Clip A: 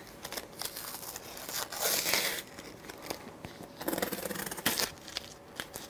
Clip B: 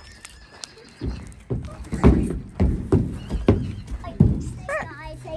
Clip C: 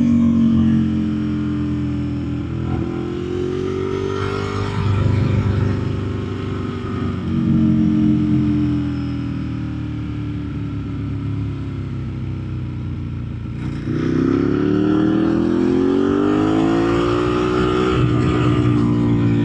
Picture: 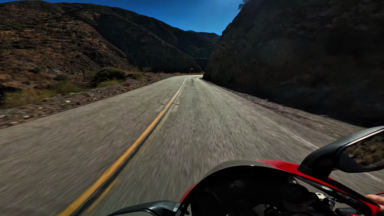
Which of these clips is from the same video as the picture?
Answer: C